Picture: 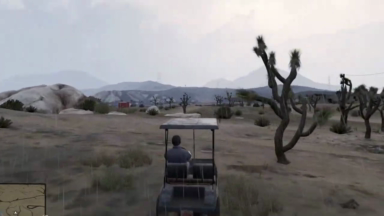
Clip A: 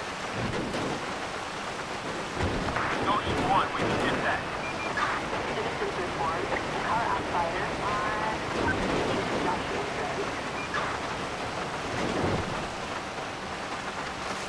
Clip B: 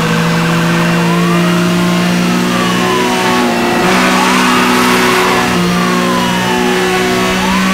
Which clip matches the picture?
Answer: A